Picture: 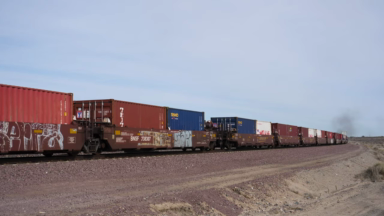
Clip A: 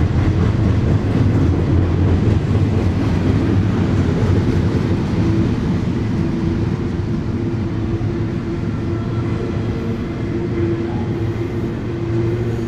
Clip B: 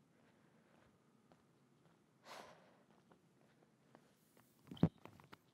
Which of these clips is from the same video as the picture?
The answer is A